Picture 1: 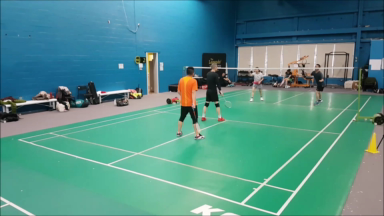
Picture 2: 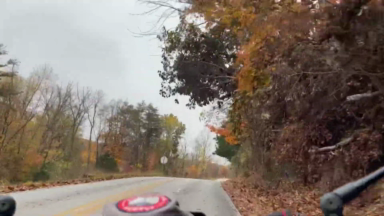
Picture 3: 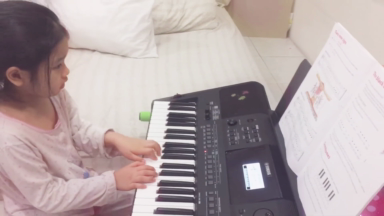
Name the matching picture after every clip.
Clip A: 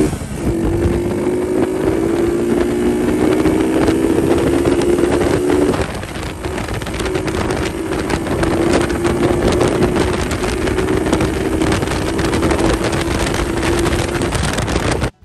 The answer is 2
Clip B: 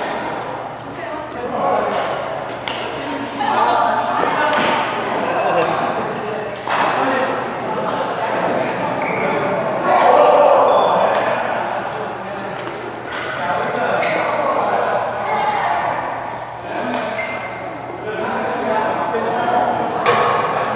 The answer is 1